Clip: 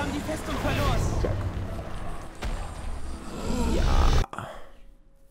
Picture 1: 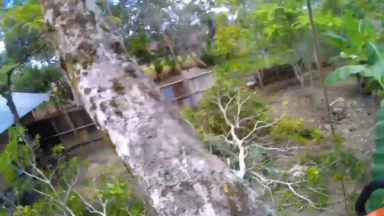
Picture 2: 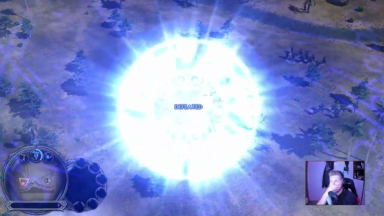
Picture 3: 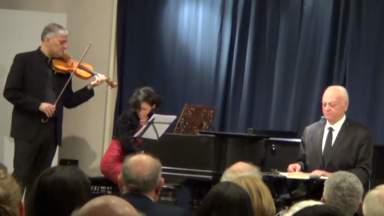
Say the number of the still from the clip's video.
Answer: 2